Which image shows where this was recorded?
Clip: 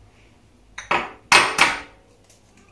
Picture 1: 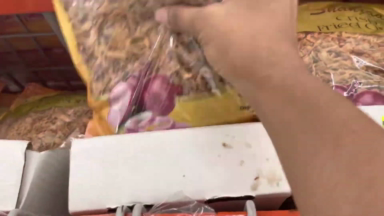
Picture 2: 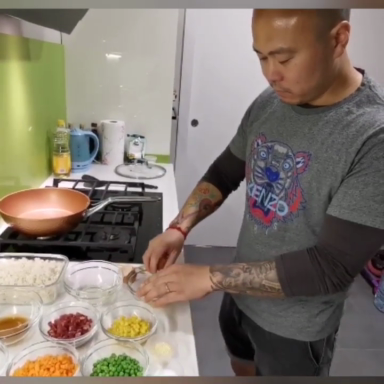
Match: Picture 2